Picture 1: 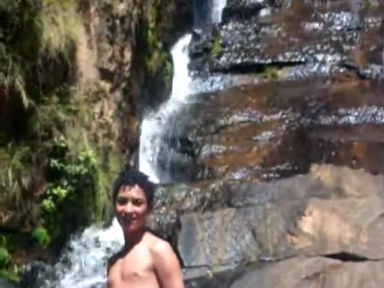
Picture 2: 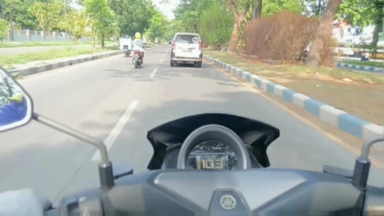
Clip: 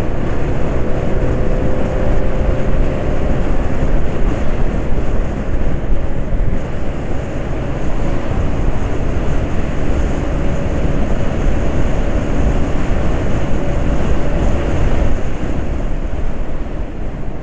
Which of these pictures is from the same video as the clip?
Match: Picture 2